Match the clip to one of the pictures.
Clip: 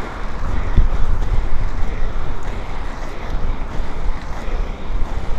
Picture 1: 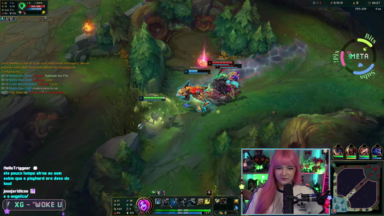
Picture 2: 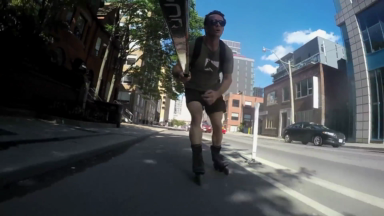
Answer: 2